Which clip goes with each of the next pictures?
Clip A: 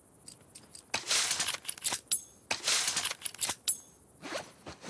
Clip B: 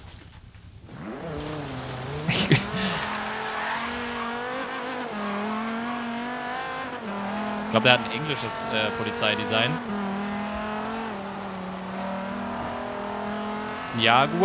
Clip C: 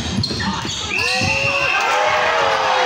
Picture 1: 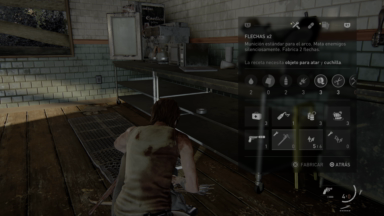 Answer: A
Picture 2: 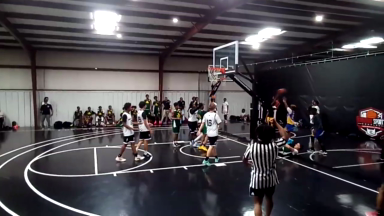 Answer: C